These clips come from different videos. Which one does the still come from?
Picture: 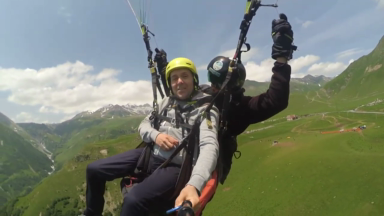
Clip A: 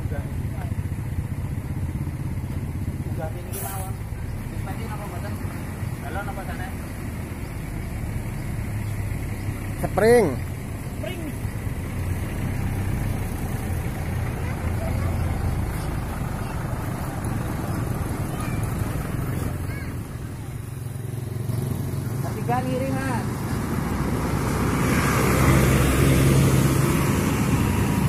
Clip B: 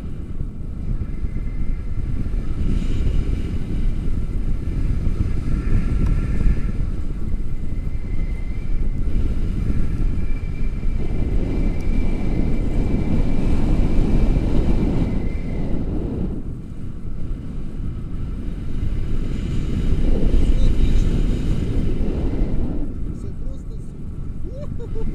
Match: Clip B